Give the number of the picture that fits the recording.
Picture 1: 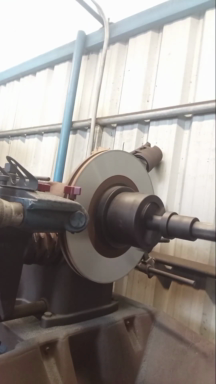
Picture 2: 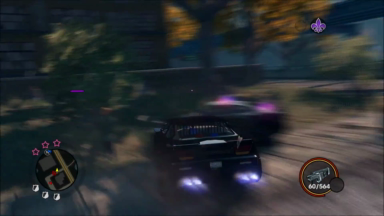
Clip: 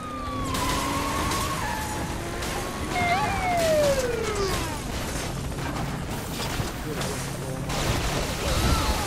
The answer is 2